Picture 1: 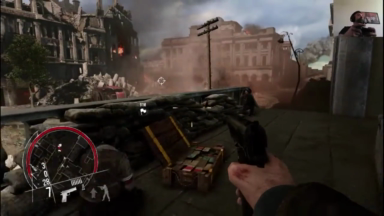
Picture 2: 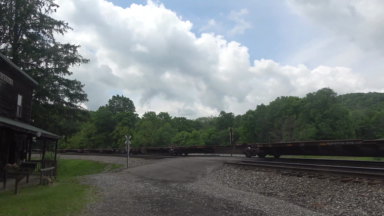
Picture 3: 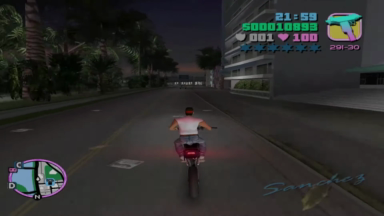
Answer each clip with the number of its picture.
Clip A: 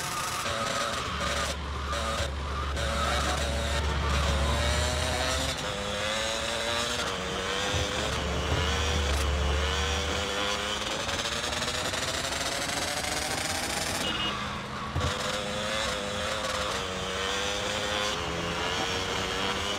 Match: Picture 3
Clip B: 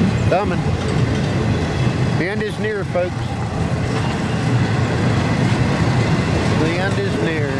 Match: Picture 2